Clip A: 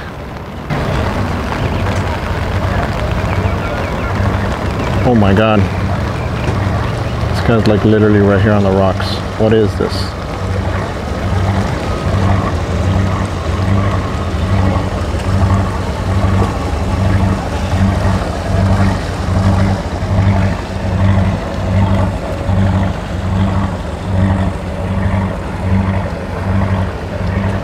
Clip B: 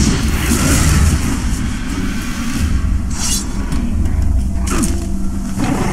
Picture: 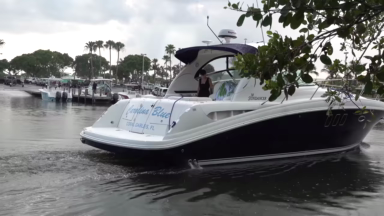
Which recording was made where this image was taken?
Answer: A